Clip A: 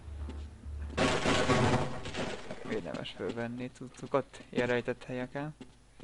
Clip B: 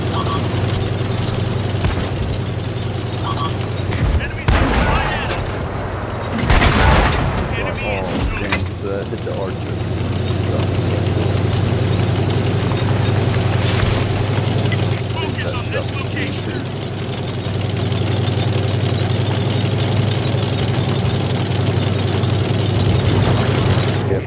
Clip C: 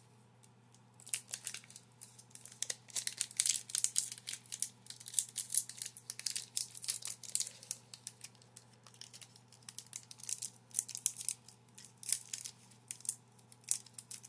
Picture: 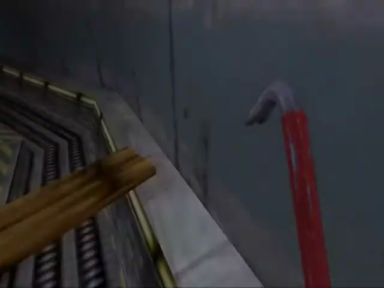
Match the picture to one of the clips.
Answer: A